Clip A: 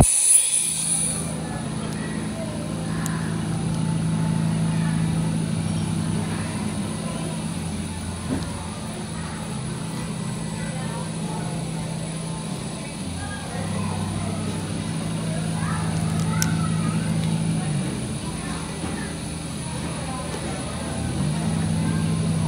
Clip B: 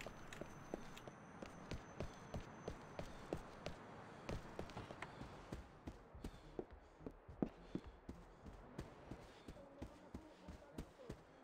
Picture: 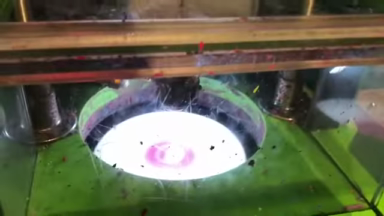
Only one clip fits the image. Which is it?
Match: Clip A